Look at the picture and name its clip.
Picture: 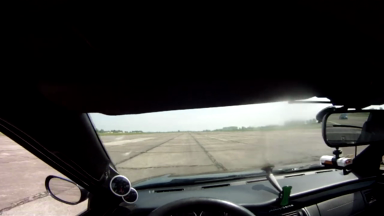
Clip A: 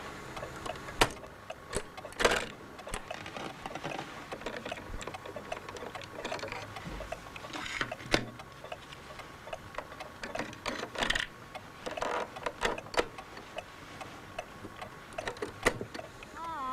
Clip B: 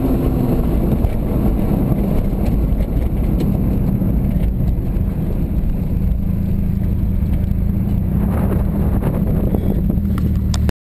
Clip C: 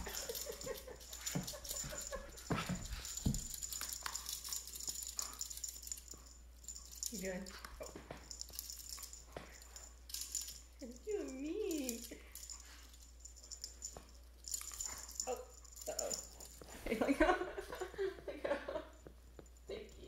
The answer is B